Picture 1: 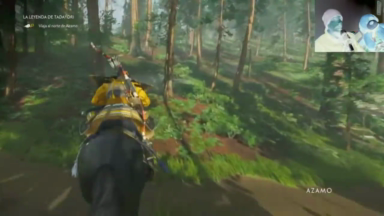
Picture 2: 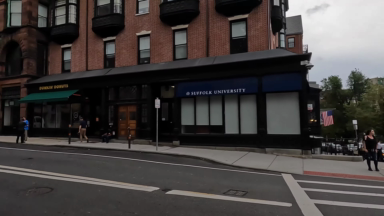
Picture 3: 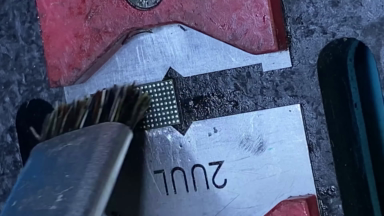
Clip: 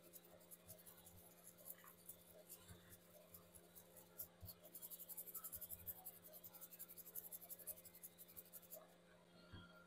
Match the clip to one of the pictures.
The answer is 3